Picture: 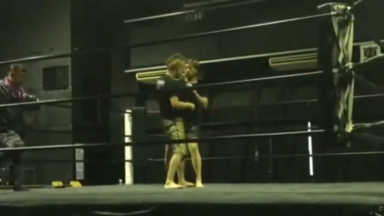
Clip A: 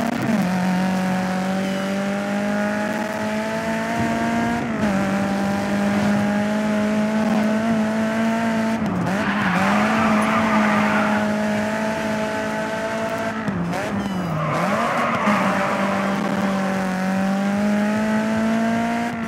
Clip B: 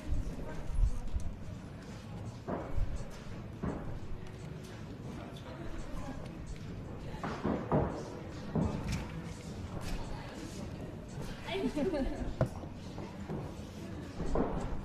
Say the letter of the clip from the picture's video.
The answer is B